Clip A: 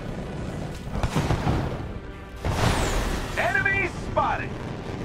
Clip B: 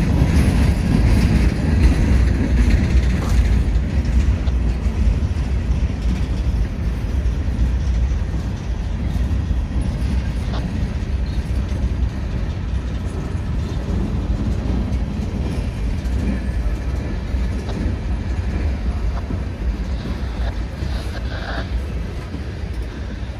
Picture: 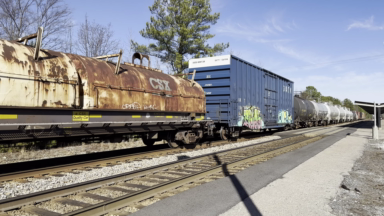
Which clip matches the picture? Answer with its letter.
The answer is B